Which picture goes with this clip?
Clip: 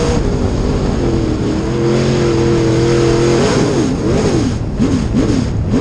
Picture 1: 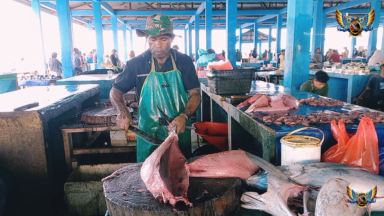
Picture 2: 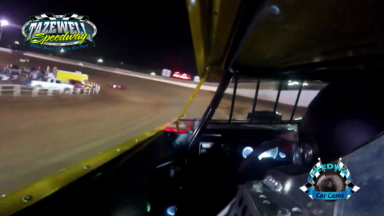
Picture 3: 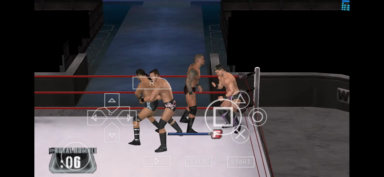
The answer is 2